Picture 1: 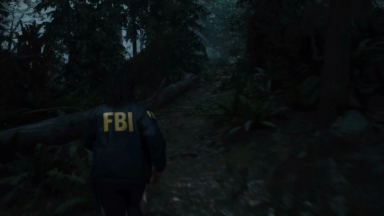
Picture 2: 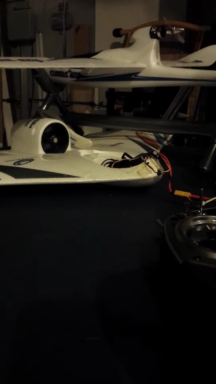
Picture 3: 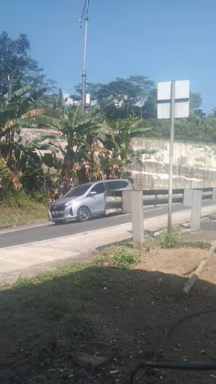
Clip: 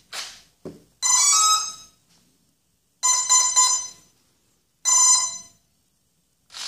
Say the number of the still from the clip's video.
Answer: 2